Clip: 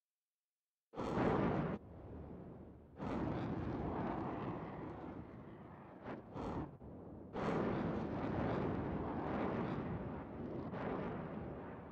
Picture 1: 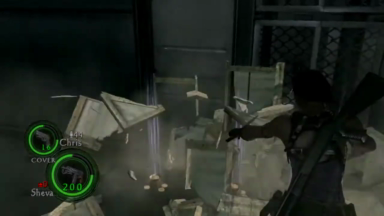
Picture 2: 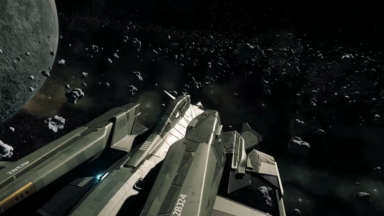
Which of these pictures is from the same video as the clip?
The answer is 2